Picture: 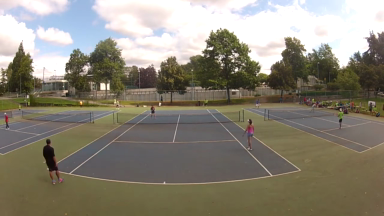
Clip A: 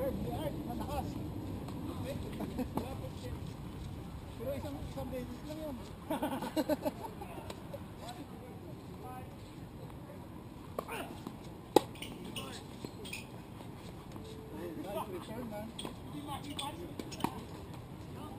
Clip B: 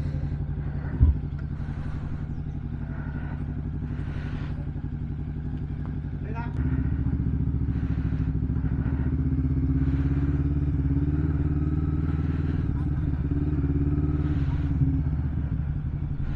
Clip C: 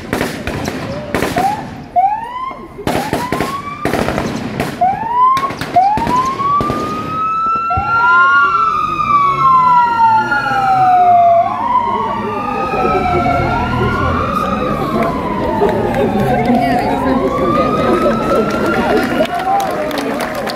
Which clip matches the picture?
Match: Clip A